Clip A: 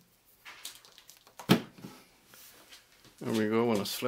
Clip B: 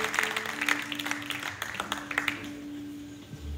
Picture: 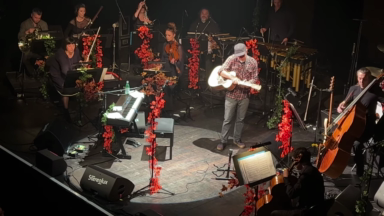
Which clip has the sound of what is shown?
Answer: B